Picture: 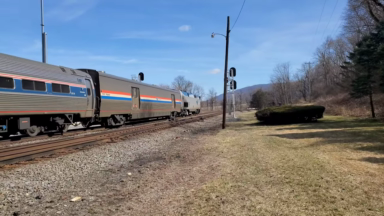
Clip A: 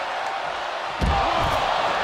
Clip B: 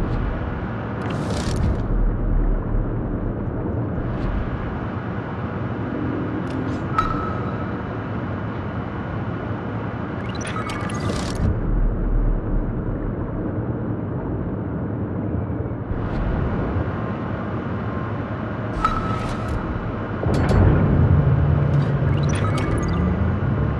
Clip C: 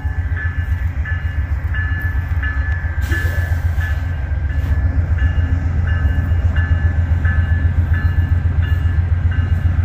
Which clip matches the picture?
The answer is C